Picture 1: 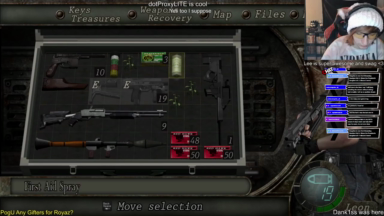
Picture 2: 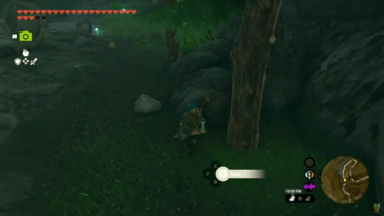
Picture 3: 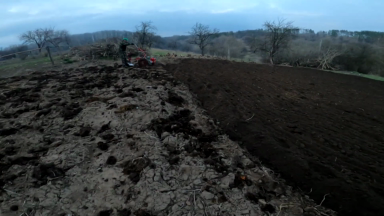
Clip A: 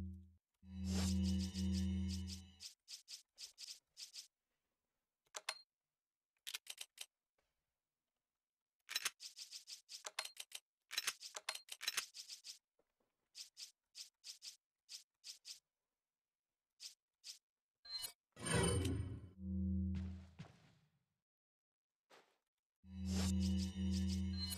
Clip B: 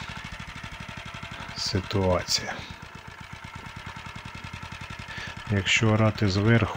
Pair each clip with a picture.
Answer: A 1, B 3